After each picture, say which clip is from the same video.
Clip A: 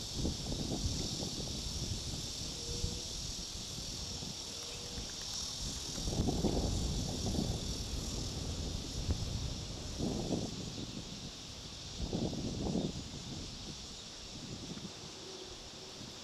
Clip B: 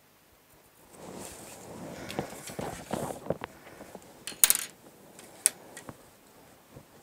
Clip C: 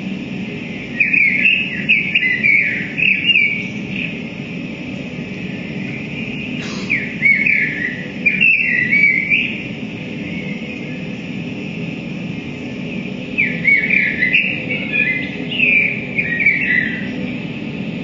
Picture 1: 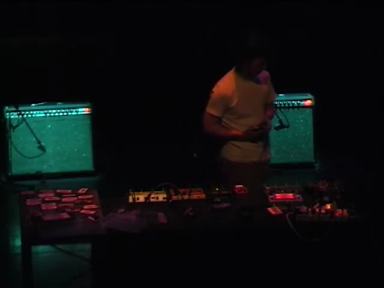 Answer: C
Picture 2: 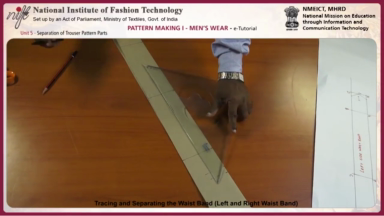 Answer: B